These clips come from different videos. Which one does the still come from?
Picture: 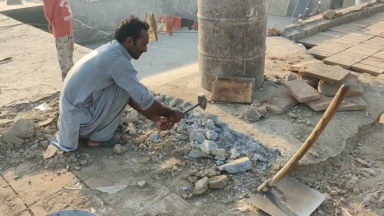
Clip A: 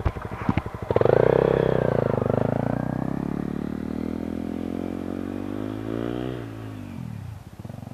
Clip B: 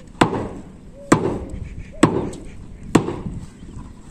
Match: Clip B